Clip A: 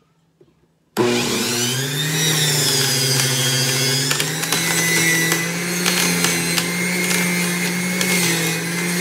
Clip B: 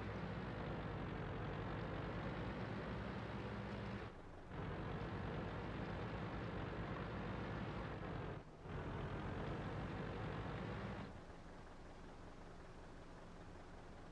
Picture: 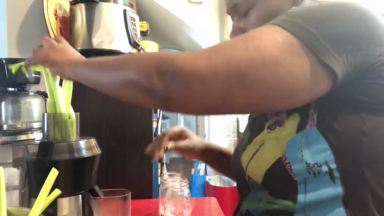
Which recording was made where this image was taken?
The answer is A